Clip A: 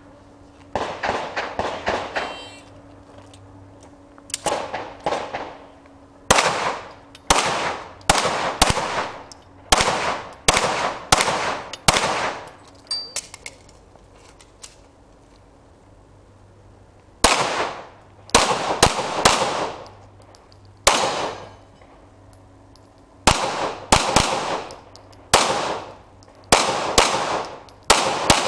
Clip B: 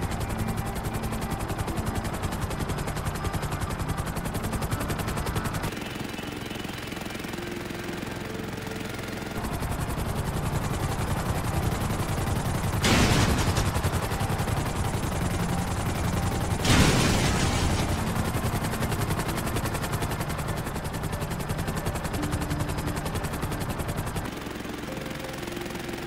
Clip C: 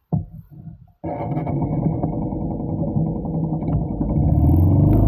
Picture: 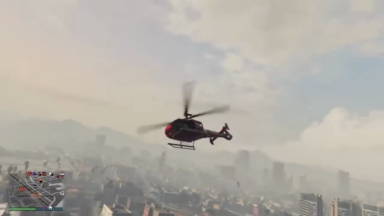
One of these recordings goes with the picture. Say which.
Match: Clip B